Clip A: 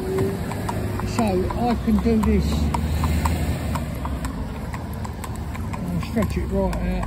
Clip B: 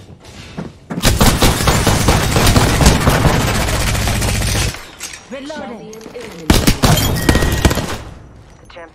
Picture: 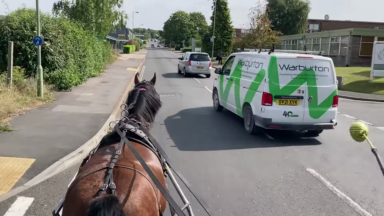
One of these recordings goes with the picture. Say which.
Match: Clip A